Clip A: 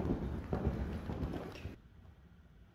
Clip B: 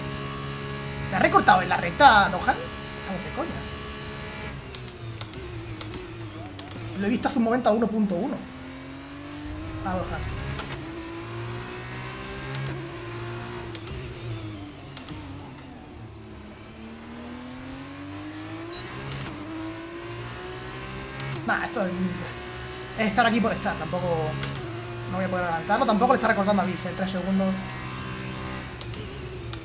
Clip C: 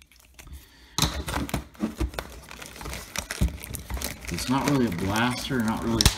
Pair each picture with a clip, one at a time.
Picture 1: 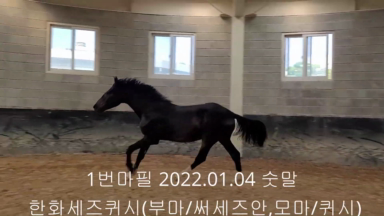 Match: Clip A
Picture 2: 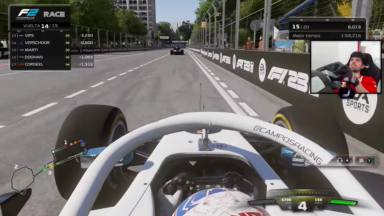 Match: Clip B